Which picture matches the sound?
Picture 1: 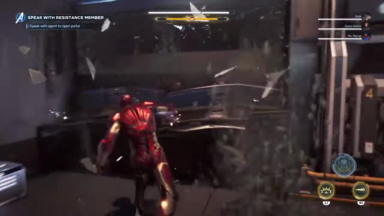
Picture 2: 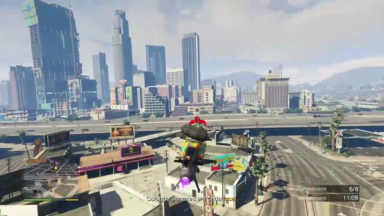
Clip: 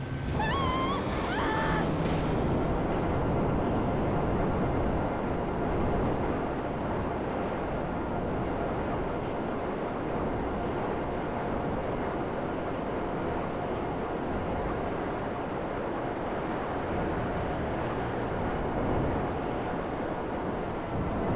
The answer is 2